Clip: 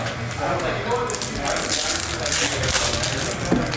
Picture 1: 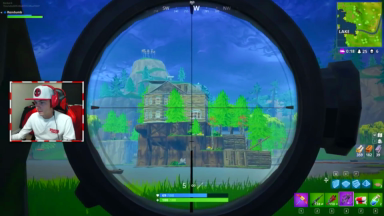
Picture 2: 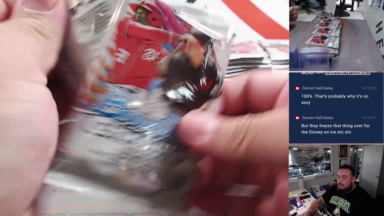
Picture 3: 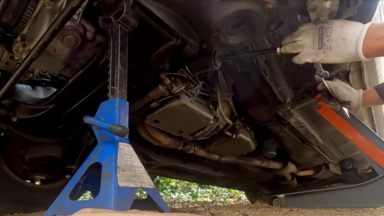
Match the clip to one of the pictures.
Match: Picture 2